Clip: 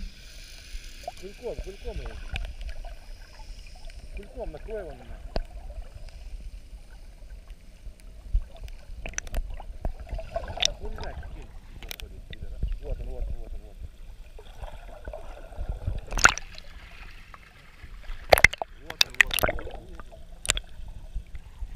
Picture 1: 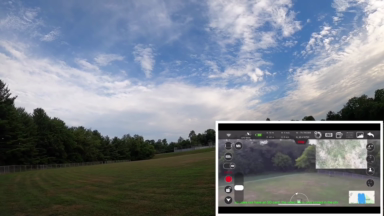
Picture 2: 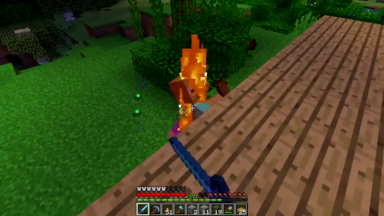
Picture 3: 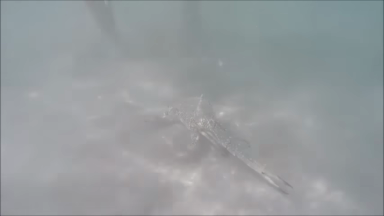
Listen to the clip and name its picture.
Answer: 3